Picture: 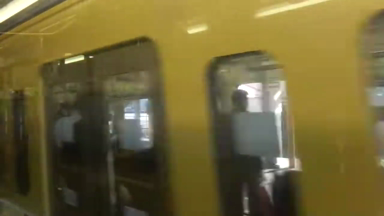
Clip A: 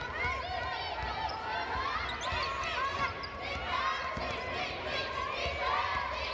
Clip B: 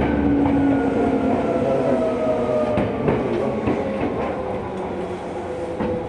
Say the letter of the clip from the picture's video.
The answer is B